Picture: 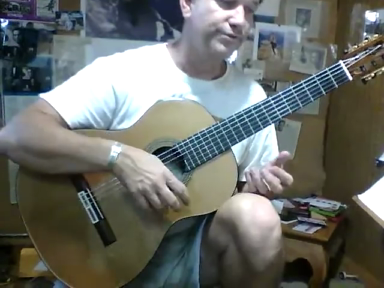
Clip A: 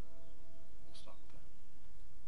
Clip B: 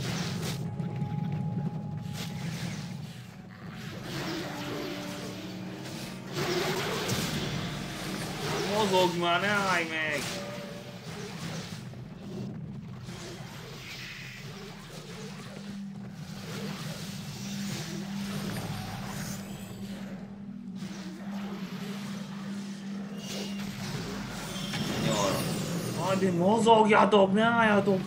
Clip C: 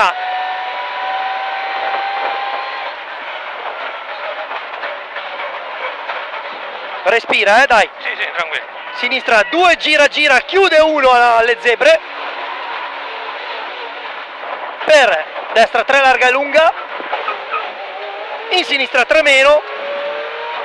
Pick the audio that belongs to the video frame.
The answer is A